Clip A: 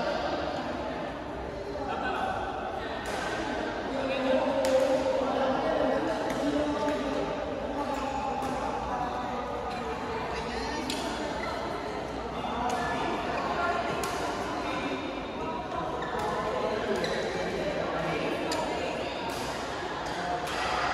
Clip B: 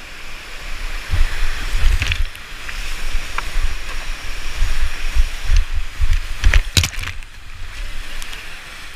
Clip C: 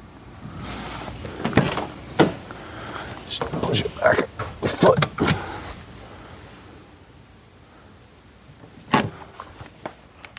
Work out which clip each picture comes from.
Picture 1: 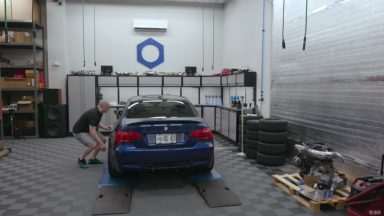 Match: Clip C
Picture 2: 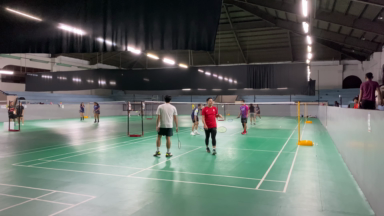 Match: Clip A